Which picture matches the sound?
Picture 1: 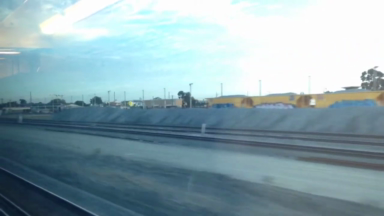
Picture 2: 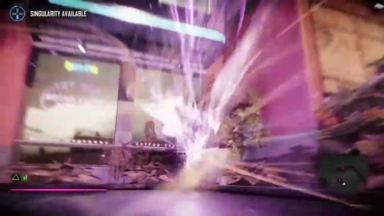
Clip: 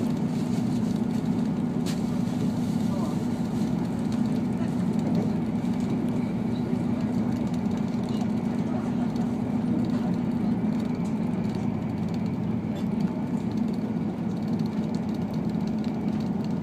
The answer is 1